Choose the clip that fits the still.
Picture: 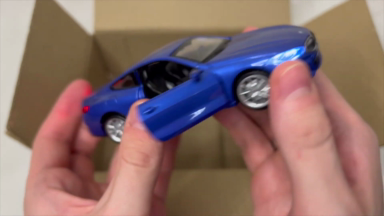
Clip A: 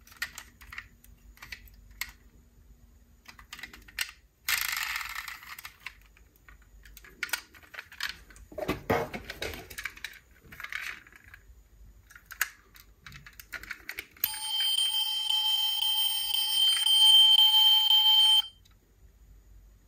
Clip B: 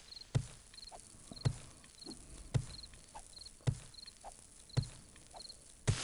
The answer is A